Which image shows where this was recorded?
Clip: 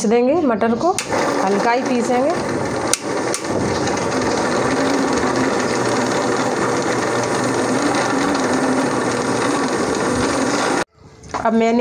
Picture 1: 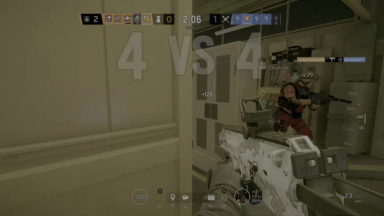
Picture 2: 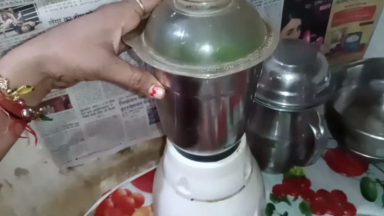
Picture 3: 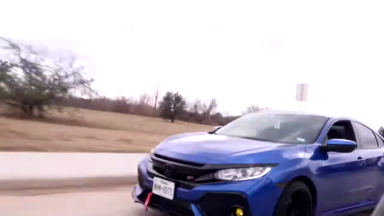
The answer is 2